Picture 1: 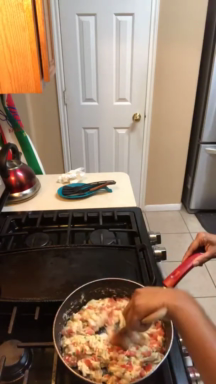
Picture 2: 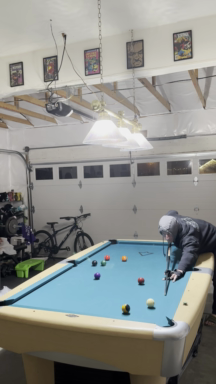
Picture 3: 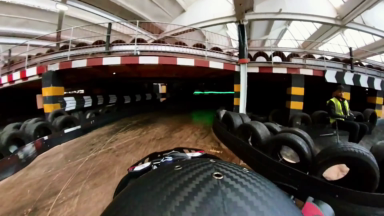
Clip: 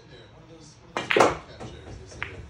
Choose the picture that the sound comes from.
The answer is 2